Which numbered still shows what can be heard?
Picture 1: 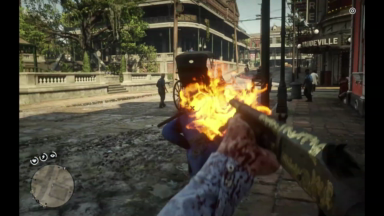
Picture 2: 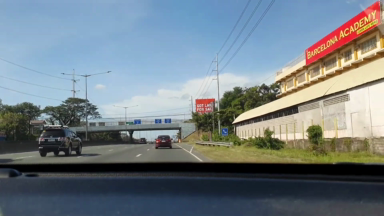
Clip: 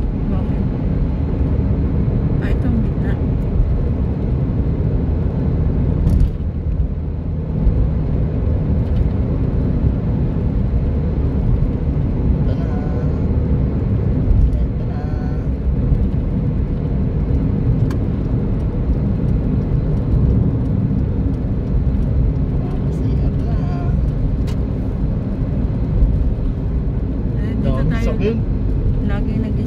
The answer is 2